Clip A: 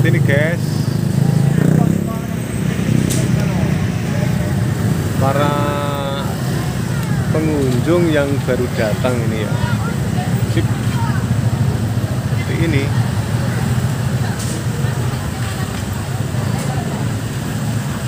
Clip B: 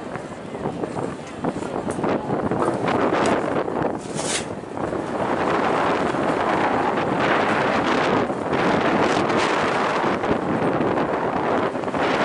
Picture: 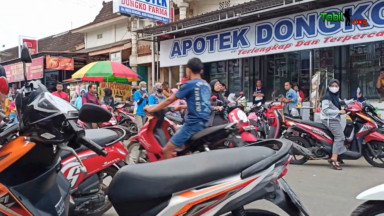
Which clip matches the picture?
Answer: A